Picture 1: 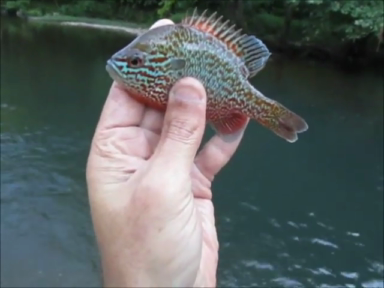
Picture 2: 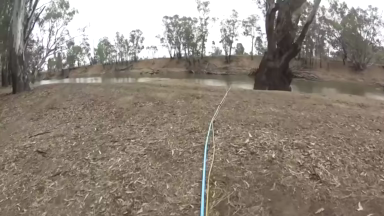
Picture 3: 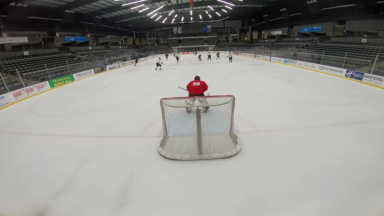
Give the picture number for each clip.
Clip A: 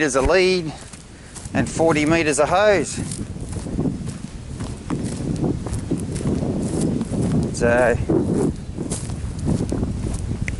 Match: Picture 2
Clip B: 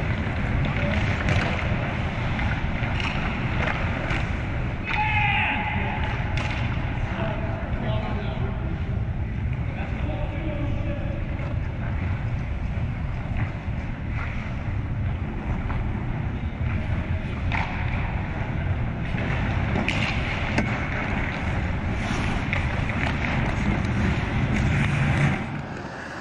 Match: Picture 3